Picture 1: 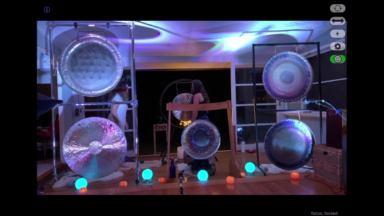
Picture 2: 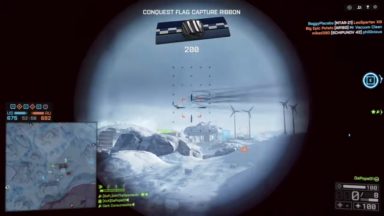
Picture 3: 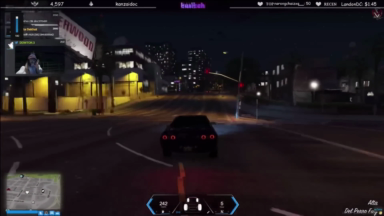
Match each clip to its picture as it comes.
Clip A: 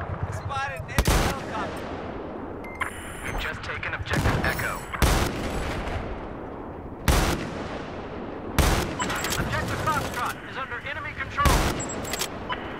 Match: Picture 2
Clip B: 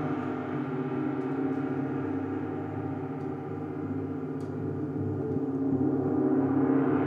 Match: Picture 1